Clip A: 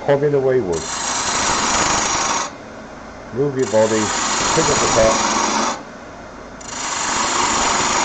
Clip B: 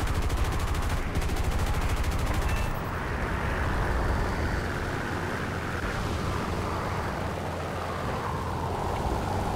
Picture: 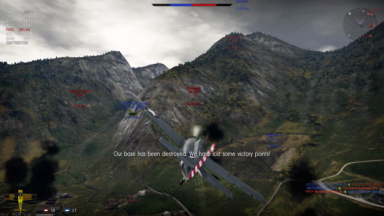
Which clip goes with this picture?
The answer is B